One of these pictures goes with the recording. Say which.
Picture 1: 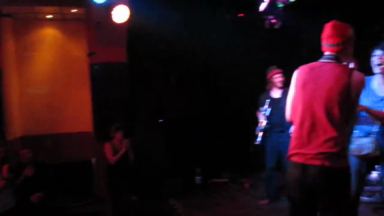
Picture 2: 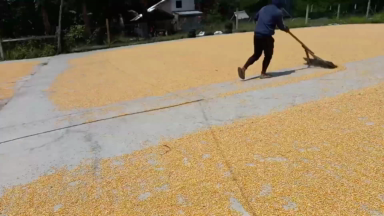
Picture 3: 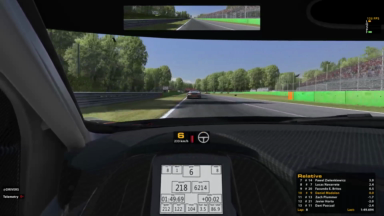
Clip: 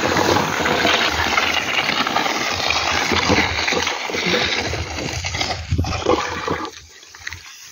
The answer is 2